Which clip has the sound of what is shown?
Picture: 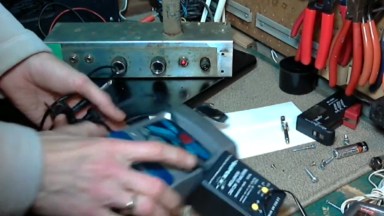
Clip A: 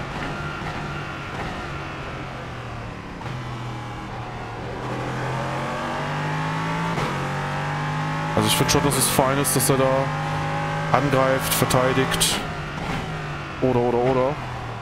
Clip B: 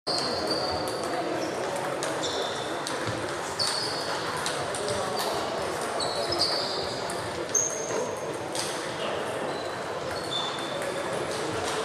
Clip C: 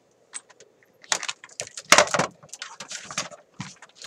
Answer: C